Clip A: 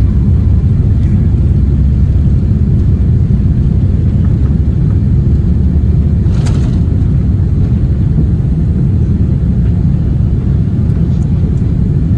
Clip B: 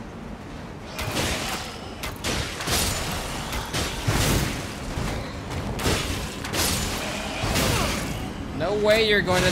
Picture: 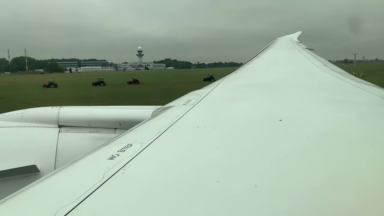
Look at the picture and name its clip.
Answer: A